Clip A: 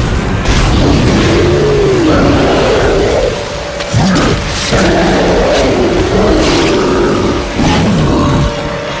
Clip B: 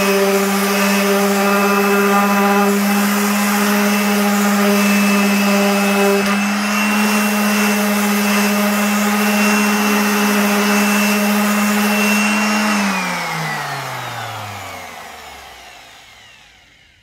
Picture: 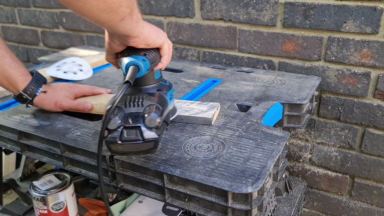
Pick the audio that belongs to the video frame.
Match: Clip B